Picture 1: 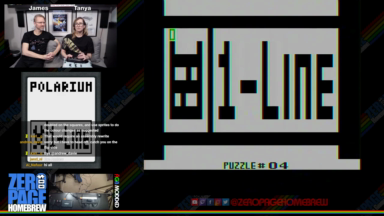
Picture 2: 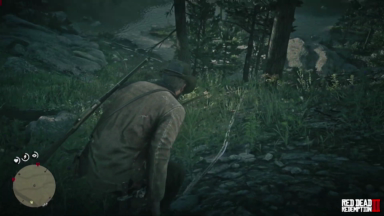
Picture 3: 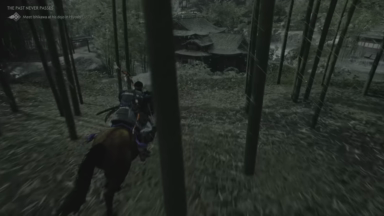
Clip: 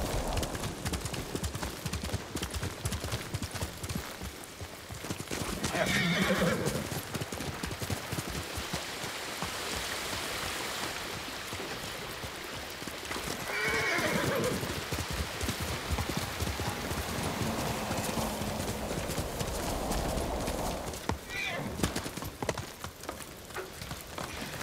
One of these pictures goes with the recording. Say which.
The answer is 3